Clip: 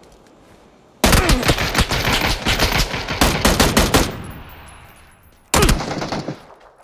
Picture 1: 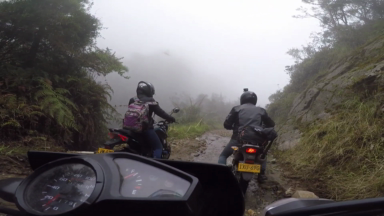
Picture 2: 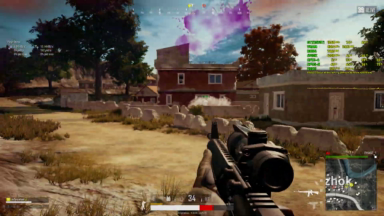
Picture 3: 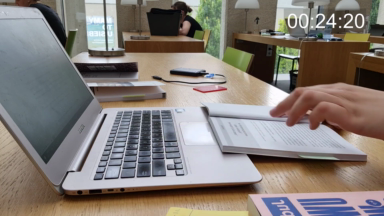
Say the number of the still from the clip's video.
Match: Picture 2